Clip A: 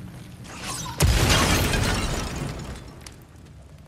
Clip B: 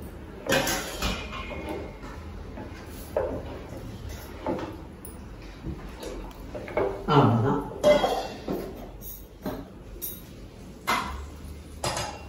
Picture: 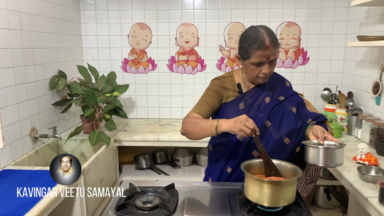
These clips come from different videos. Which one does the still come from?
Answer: B